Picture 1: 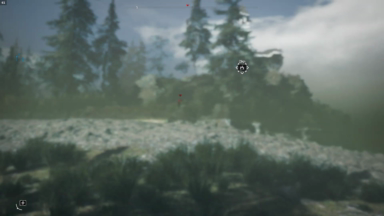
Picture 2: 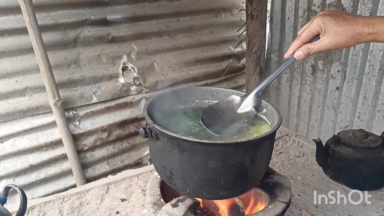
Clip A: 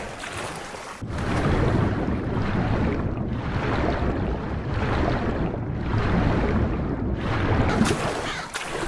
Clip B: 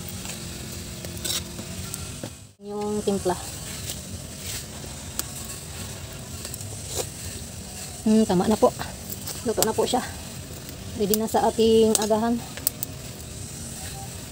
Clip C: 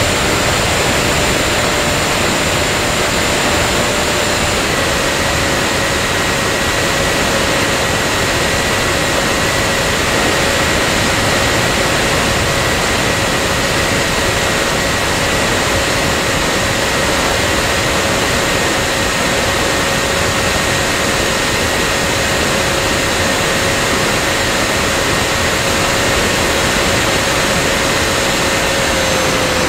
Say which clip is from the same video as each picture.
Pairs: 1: A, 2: B